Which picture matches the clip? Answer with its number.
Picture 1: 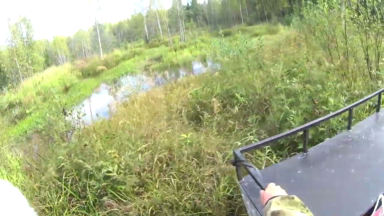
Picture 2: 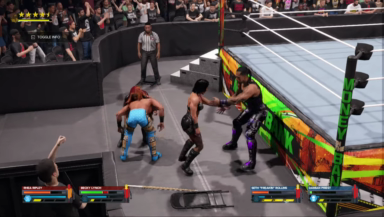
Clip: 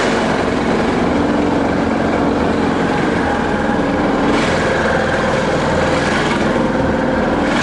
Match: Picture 1